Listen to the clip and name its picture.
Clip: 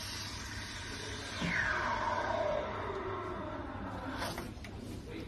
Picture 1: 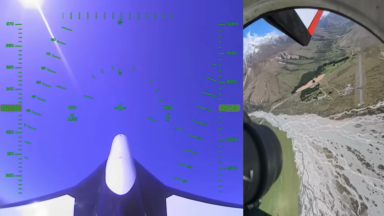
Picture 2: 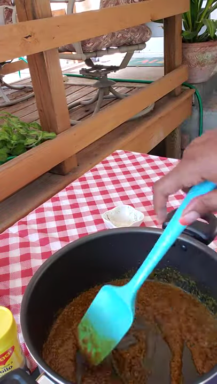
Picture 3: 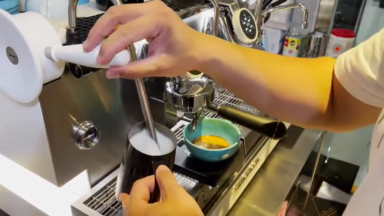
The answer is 3